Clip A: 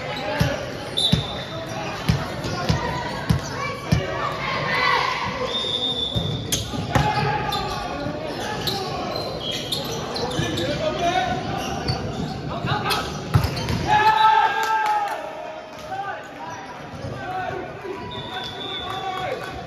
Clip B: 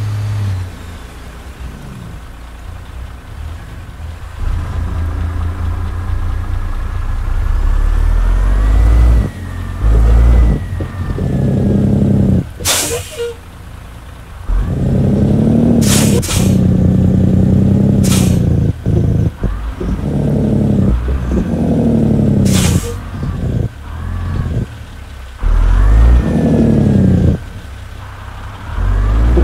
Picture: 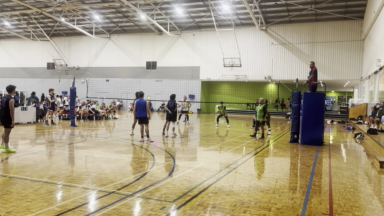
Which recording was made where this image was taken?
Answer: A